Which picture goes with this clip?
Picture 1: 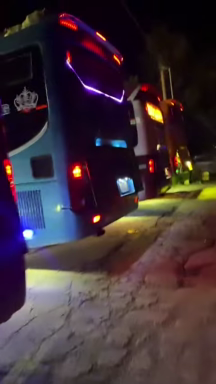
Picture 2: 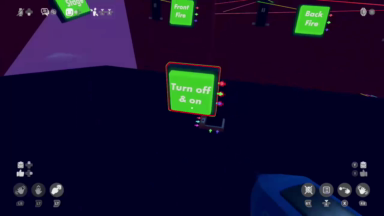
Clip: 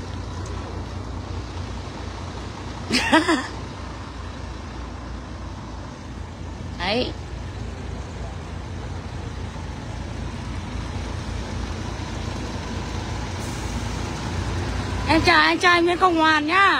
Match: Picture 1